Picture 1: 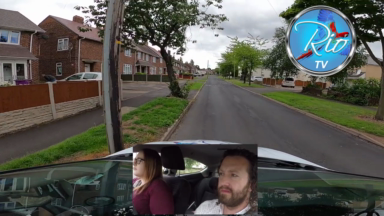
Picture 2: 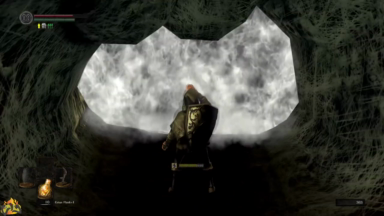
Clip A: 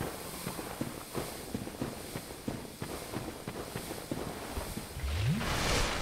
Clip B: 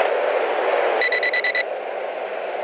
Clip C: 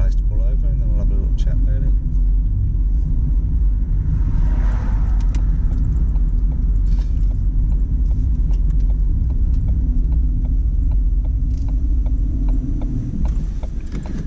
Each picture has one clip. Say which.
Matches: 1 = C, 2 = A